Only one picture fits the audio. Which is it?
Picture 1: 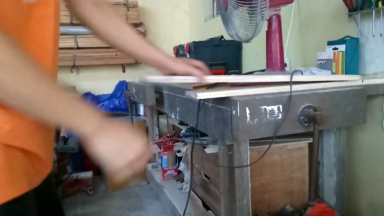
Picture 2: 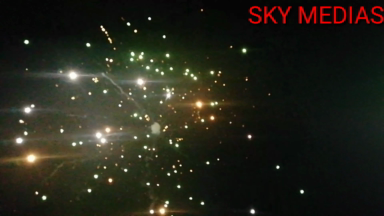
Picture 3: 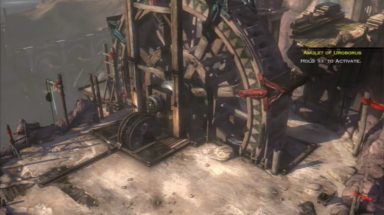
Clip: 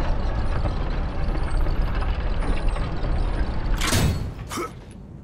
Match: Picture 3